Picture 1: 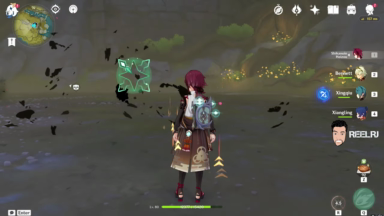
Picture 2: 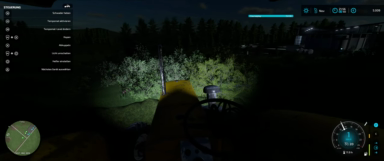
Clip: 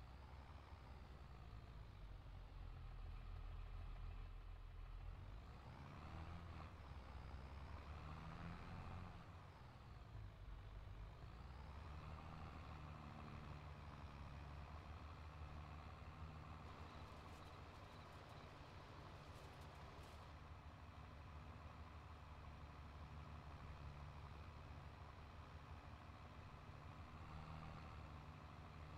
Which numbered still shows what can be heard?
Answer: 2